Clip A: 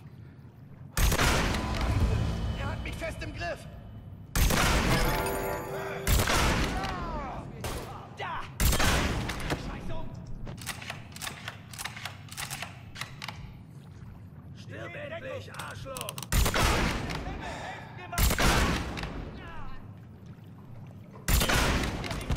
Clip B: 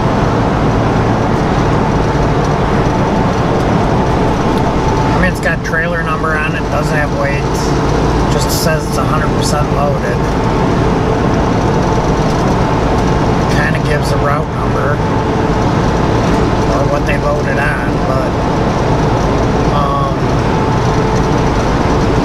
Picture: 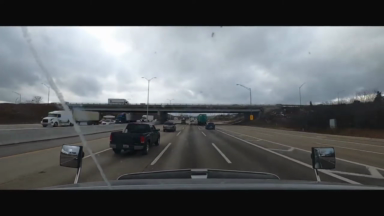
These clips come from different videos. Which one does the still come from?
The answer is B